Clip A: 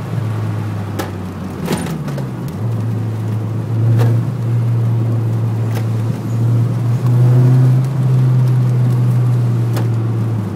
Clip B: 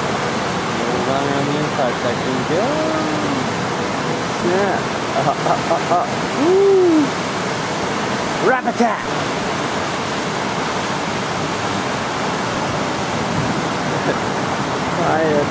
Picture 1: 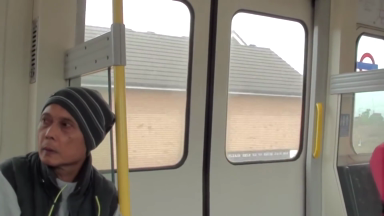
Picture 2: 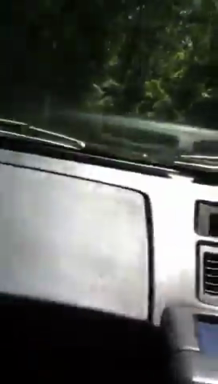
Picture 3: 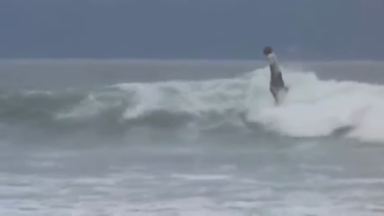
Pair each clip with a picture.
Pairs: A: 2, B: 3